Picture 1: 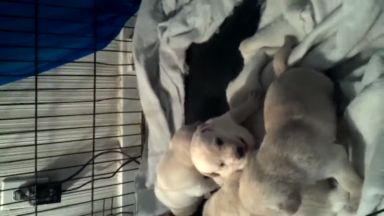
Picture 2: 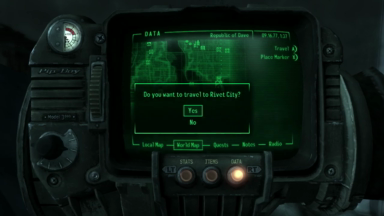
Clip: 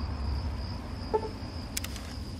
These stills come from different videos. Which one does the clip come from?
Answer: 2